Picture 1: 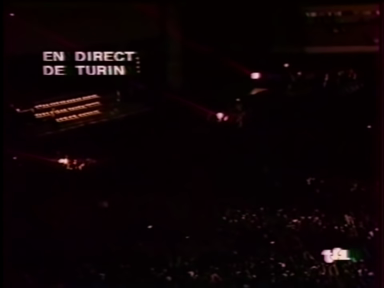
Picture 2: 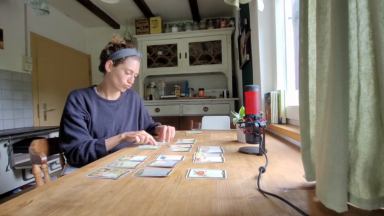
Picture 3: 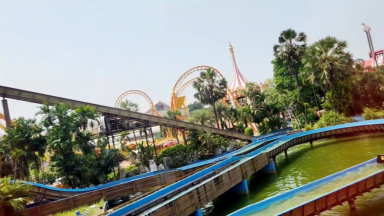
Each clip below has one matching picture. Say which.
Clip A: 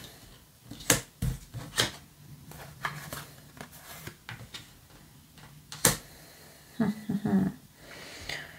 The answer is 2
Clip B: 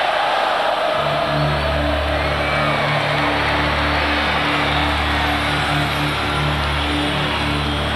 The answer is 1